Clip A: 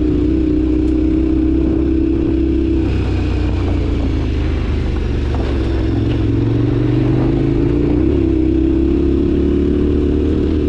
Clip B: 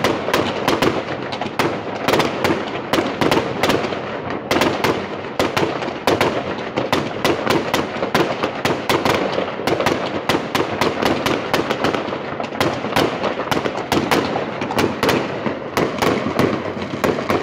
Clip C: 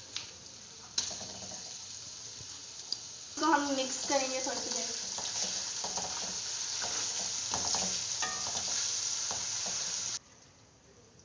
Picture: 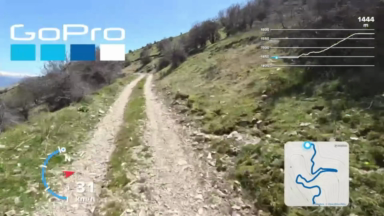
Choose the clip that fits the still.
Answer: A